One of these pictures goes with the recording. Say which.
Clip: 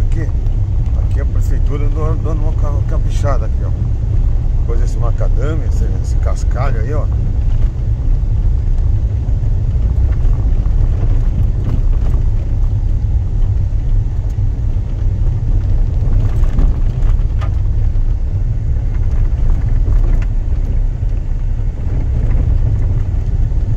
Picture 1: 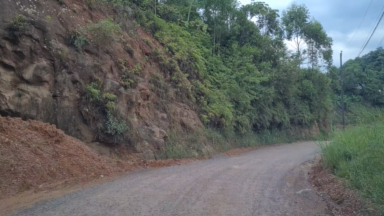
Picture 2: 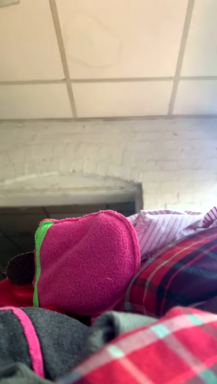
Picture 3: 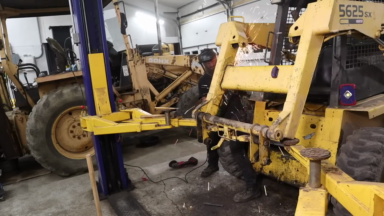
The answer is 1